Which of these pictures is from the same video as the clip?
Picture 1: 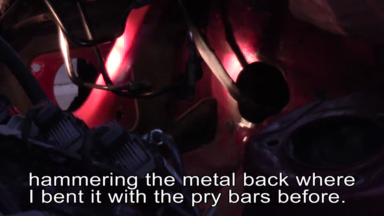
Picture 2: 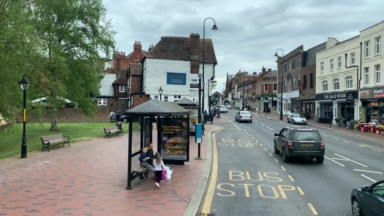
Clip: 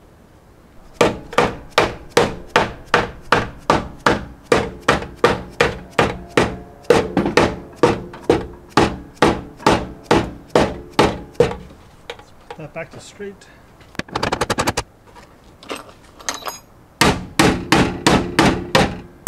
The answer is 1